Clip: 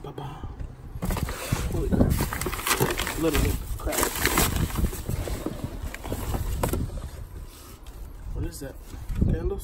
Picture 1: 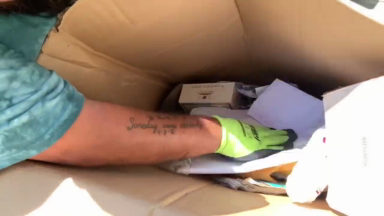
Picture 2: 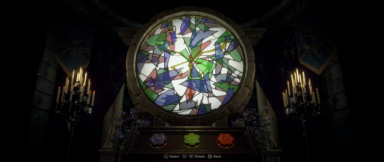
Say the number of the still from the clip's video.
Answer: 1